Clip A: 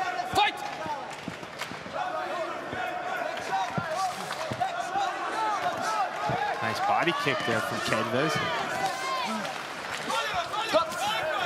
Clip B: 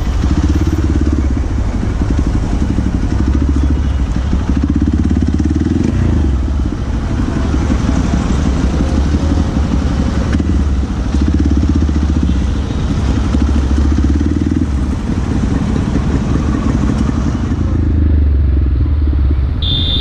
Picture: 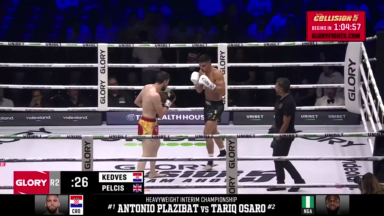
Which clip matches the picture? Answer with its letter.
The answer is A